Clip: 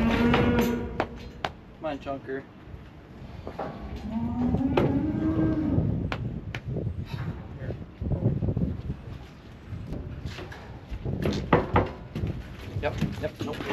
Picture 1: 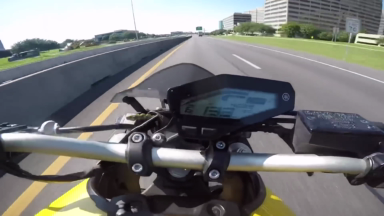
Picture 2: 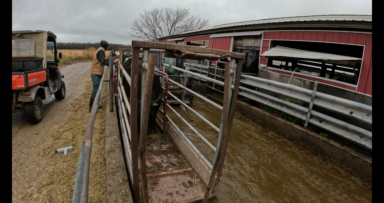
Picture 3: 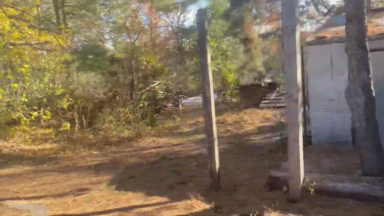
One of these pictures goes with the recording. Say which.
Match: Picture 2